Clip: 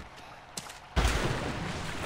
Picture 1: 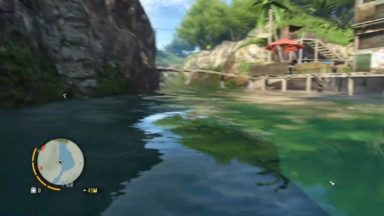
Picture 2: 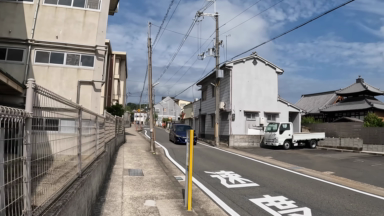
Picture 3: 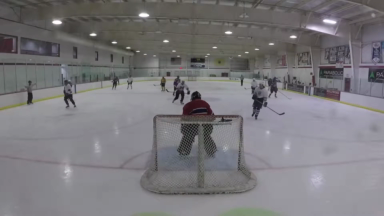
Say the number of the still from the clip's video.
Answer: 1